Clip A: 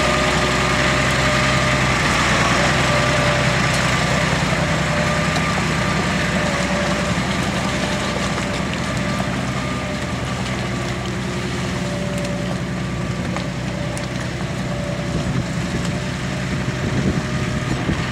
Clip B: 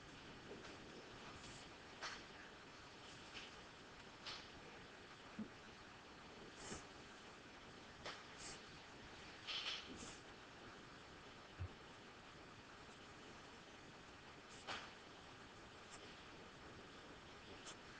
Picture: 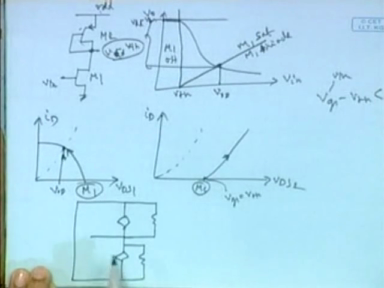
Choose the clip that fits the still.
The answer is B